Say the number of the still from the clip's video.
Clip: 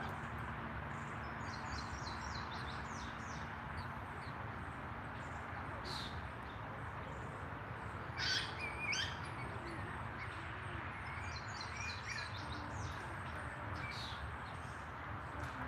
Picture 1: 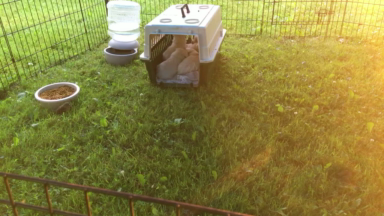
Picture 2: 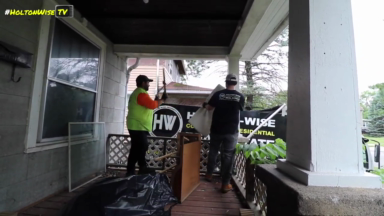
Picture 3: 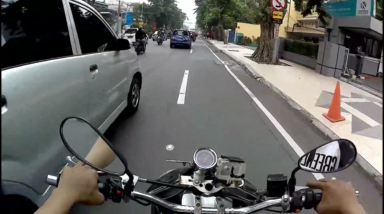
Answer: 1